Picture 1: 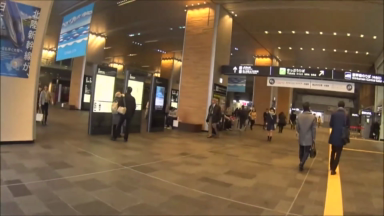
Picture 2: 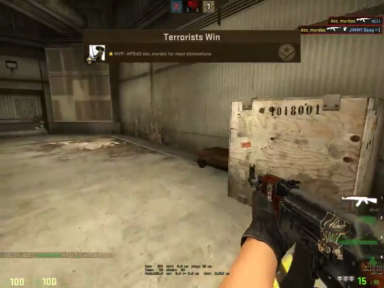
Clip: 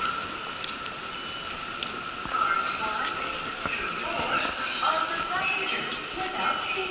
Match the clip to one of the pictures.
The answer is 1